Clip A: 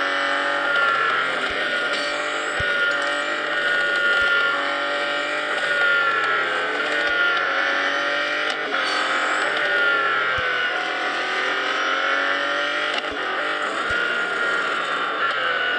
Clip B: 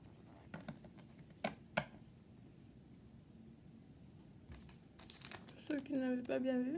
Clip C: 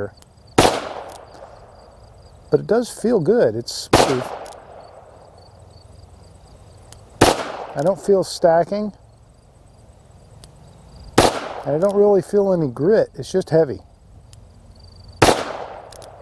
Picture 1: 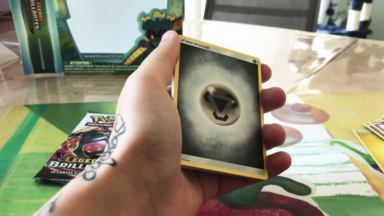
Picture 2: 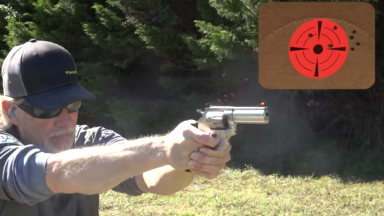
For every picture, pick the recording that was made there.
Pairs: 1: B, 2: C